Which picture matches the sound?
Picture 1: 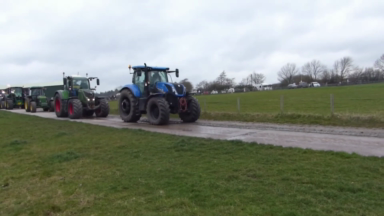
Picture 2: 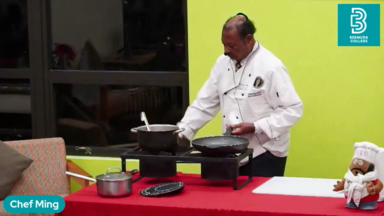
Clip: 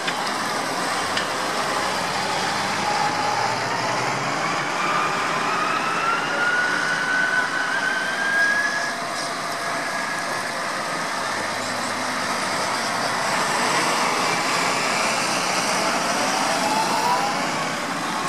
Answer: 1